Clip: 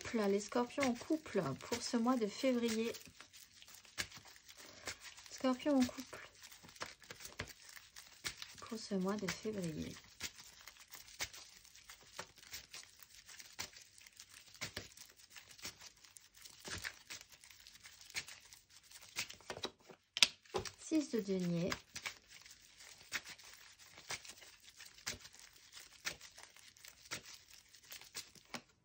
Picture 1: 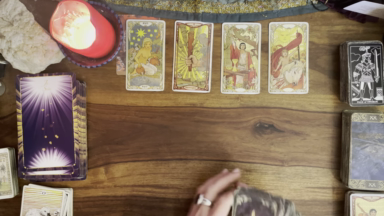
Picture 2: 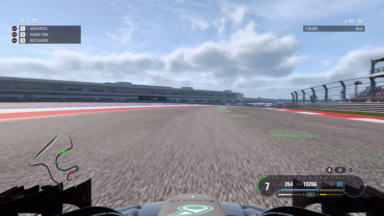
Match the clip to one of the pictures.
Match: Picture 1